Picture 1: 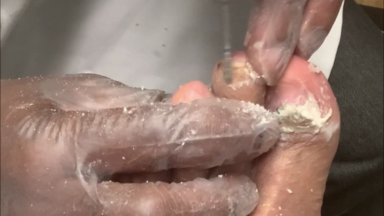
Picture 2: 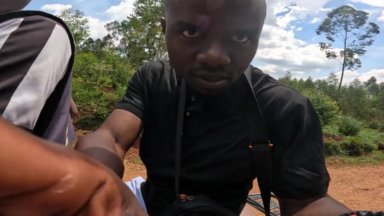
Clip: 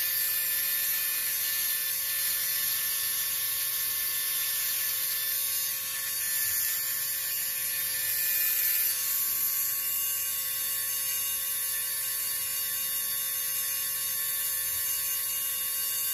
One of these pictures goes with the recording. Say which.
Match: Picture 1